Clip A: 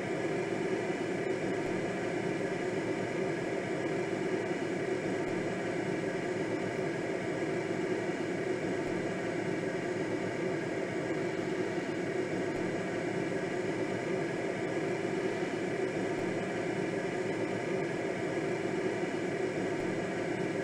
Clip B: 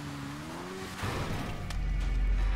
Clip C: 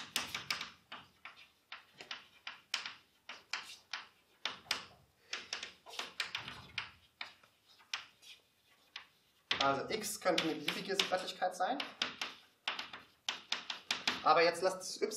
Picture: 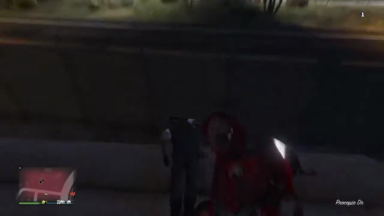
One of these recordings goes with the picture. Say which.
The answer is B